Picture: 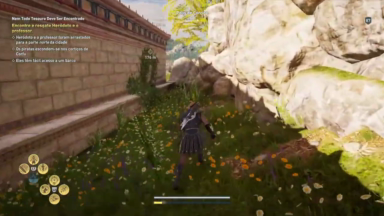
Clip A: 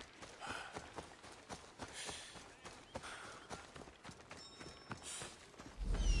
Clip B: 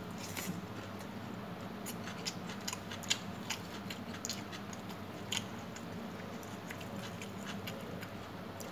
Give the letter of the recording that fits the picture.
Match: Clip A